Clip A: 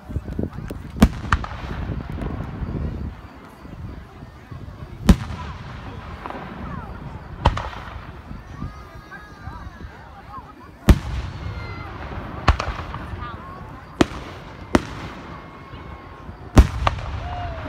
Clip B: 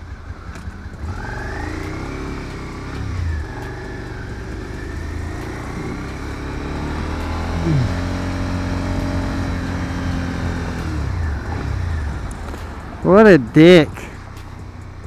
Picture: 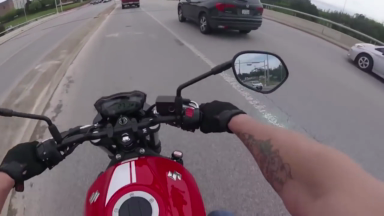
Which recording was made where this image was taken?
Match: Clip B